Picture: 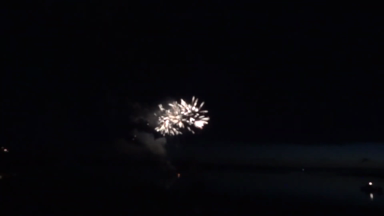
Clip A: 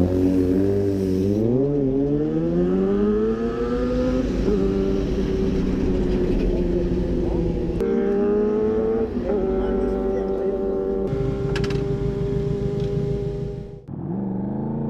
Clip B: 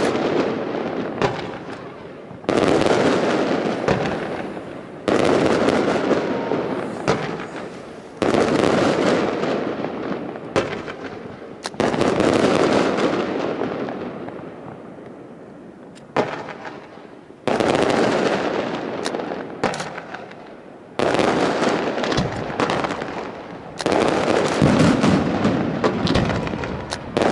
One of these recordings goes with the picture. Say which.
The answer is B